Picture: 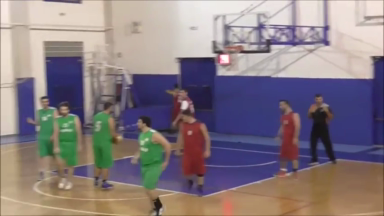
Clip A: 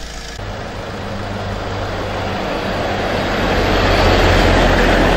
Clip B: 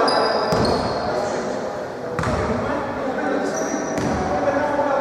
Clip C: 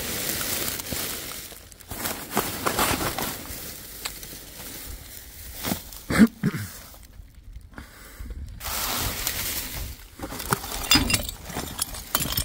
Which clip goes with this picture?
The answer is B